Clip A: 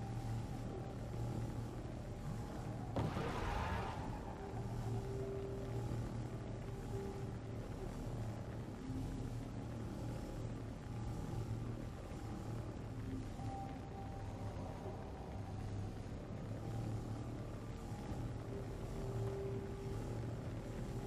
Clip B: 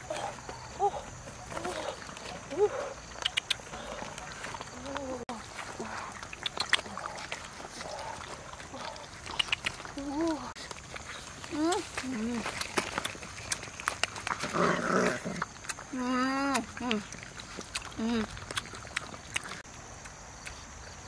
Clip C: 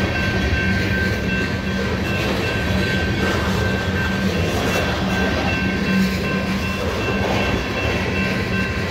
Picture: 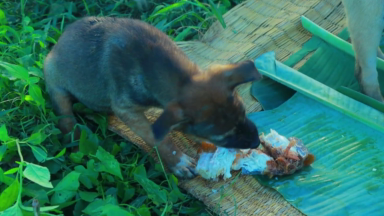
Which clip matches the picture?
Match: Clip B